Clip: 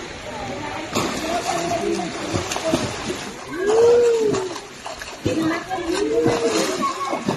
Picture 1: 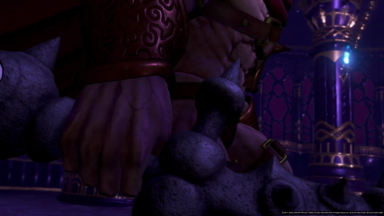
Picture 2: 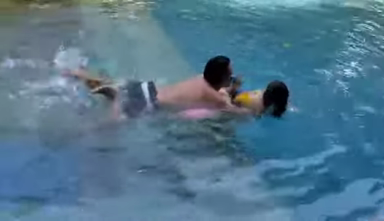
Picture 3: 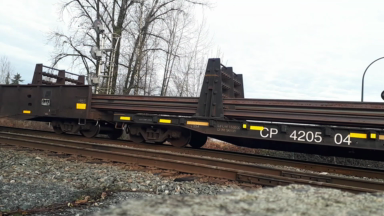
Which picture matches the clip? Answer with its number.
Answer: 2